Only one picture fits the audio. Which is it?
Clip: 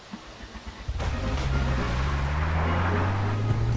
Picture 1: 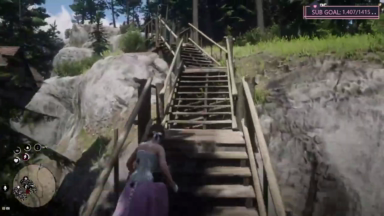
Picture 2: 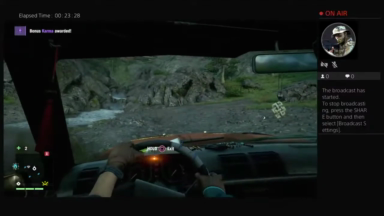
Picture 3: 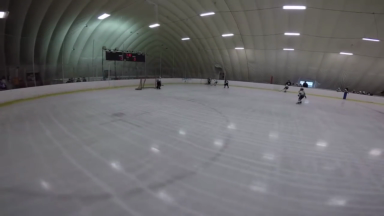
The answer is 2